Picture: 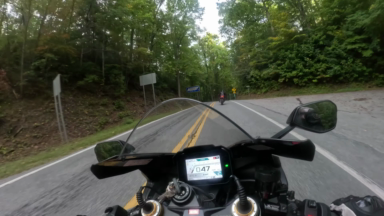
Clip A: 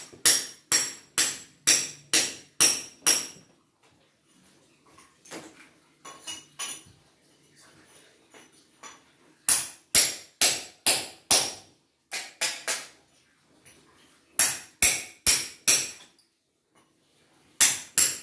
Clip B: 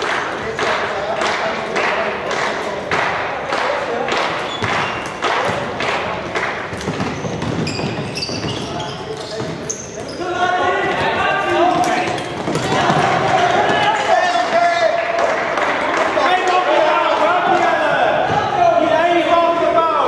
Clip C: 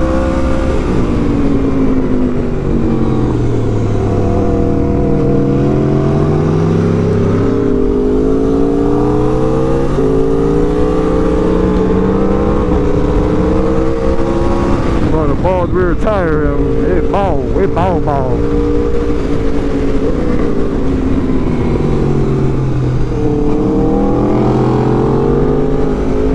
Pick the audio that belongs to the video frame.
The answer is C